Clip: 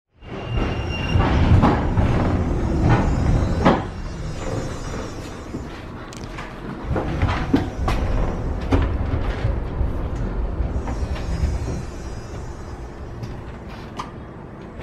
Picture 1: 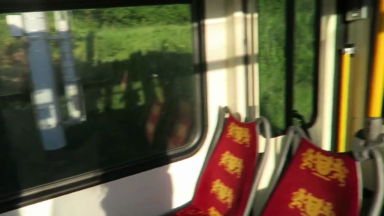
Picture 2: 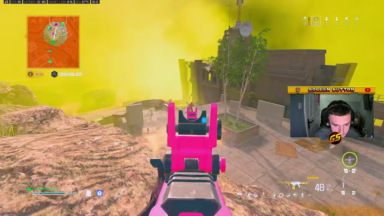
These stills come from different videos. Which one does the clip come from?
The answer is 1